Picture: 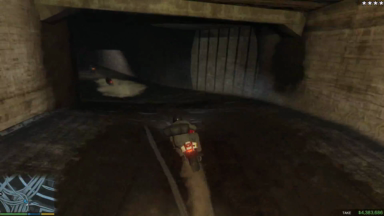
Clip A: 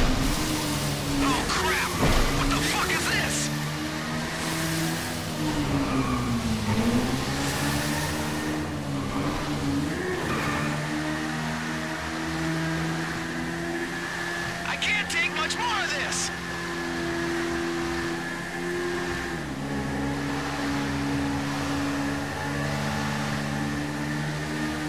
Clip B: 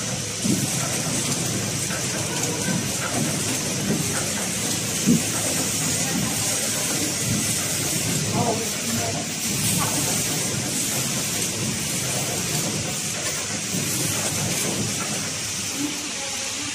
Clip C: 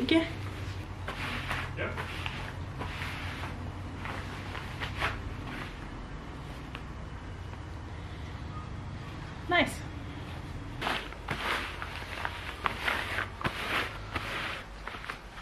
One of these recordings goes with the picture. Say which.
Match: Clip A